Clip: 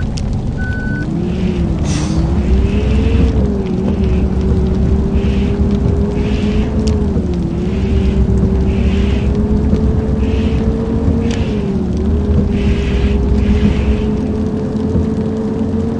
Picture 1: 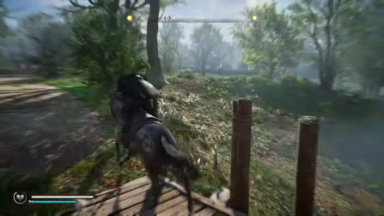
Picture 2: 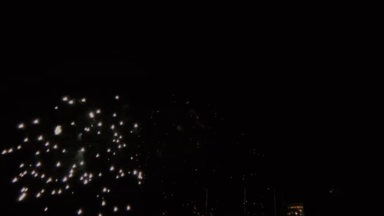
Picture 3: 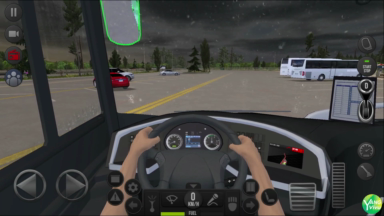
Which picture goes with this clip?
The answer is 3